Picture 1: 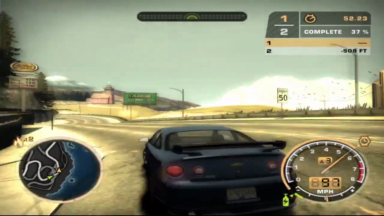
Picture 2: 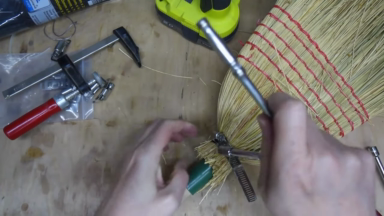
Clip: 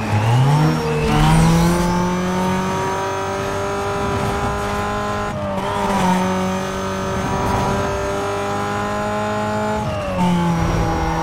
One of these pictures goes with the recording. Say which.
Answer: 1